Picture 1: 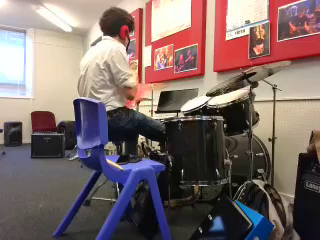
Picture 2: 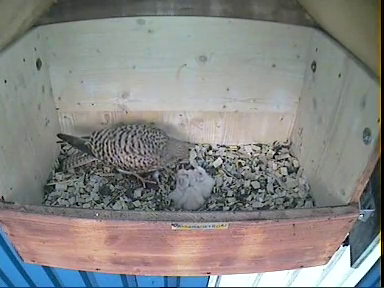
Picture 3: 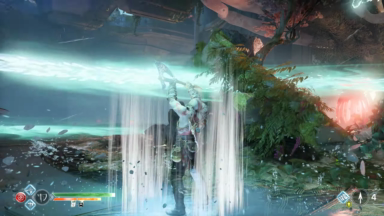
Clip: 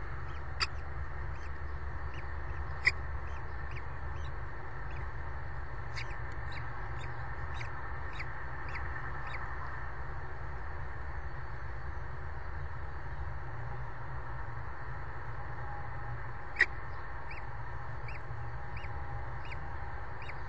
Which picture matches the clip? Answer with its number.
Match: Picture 2